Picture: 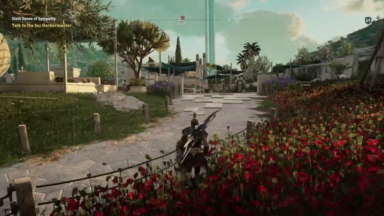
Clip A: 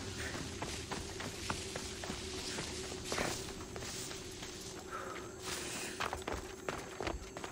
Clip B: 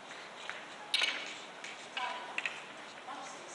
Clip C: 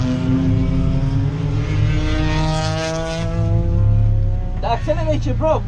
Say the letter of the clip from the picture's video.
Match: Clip A